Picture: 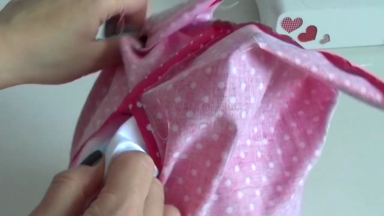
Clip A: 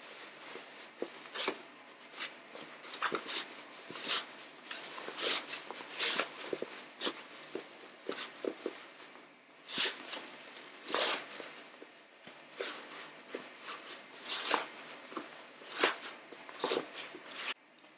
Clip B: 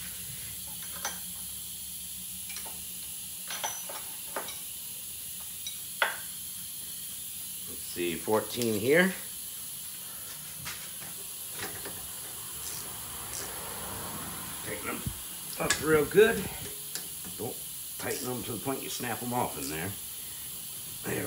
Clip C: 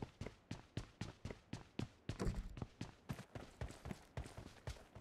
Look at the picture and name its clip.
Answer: A